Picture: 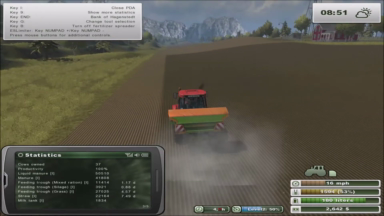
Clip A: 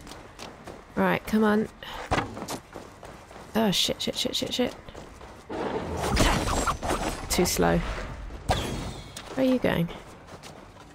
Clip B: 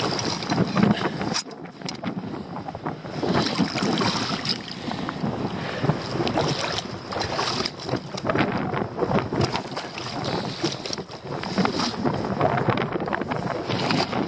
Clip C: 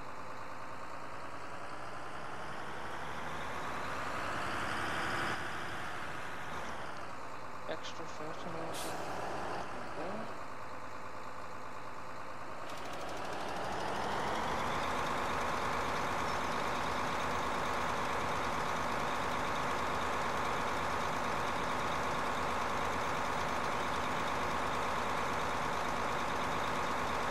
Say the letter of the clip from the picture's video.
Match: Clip C